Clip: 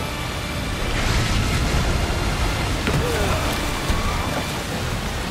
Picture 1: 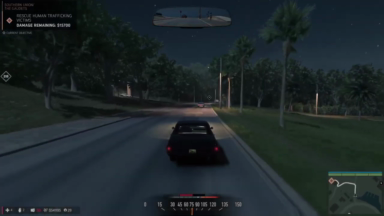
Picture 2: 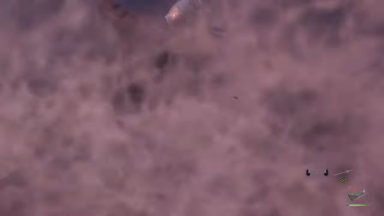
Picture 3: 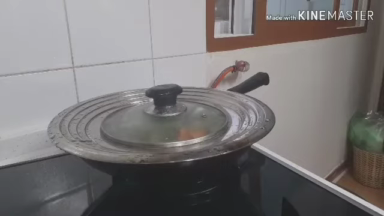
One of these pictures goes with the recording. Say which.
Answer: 2